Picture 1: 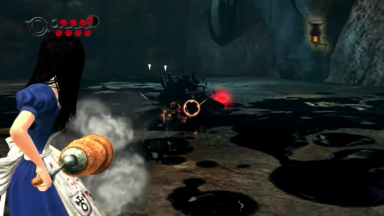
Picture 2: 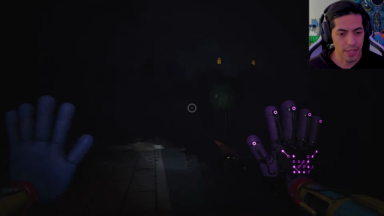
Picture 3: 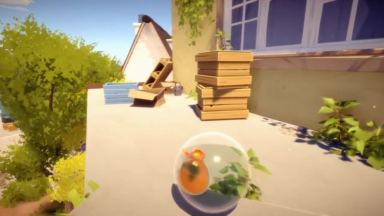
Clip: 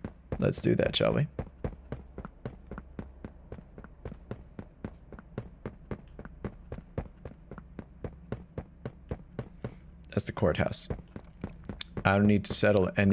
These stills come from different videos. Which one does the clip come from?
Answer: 2